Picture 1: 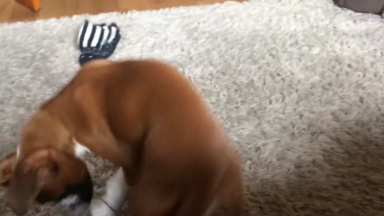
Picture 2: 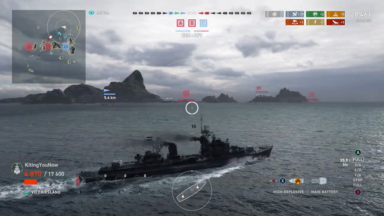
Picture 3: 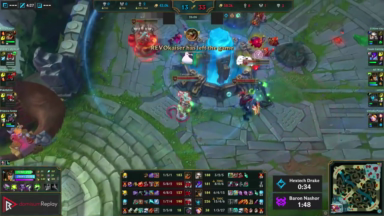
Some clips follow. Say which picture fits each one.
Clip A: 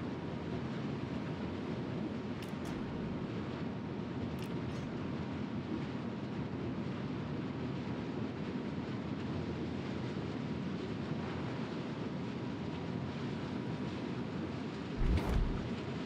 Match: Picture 2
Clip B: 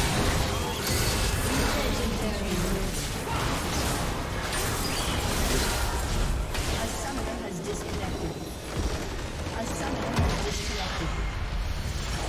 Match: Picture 3